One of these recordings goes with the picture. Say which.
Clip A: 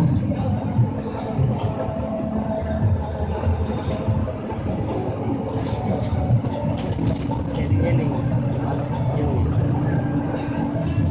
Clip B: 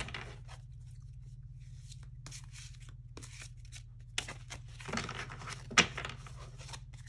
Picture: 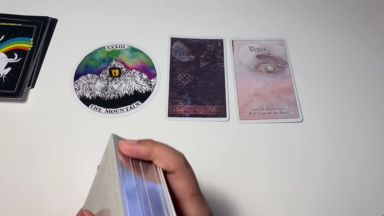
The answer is B